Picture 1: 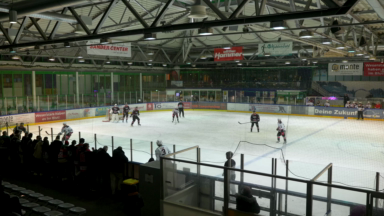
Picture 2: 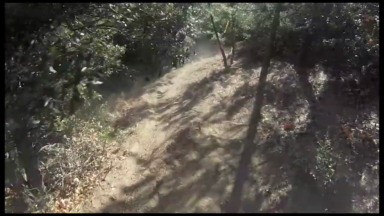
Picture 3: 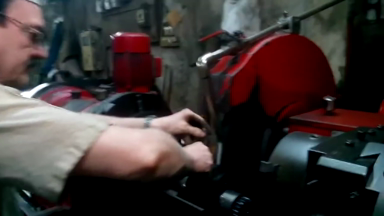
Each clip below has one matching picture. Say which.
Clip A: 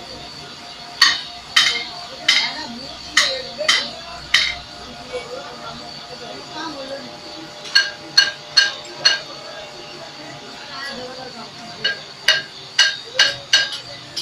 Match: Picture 3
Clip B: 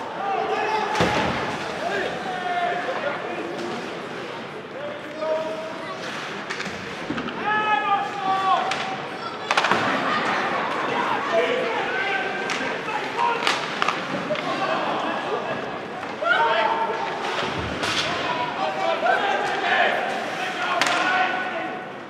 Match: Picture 1